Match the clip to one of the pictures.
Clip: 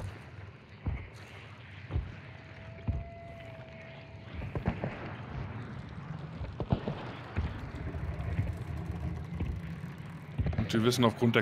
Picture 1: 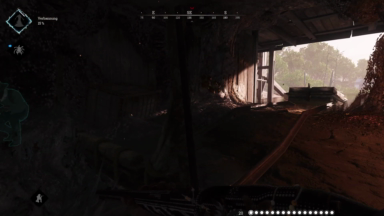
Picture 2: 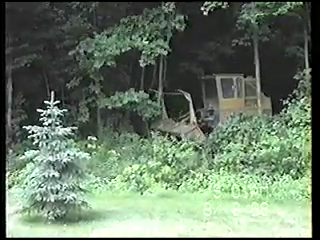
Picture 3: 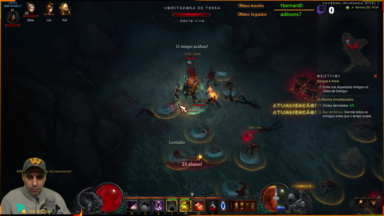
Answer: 1